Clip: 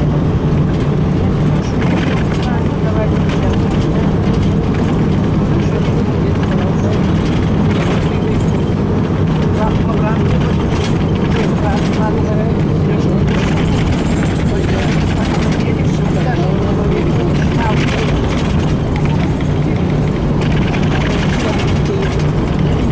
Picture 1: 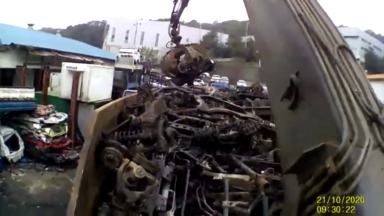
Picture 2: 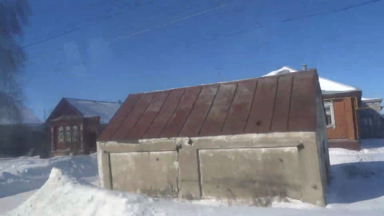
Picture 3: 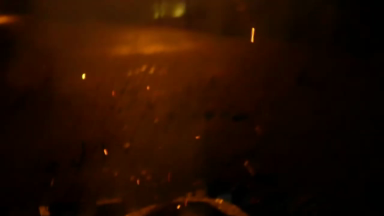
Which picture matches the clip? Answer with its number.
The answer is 2